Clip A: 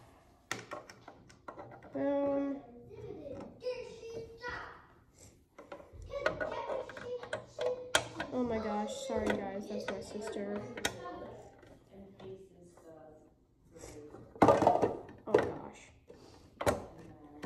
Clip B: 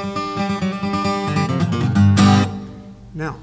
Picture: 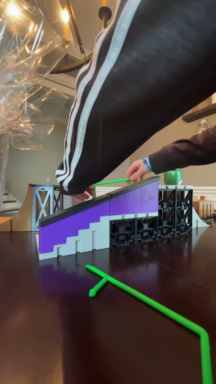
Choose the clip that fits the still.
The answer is A